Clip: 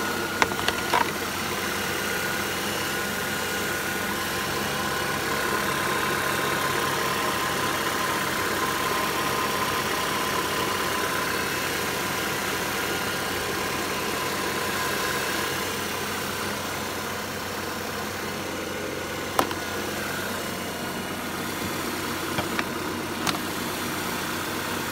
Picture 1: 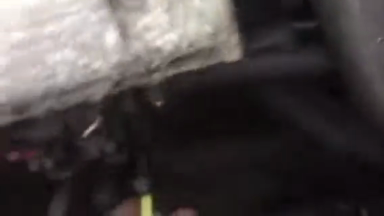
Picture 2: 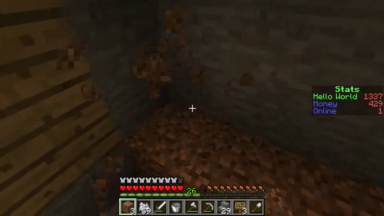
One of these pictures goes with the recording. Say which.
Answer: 1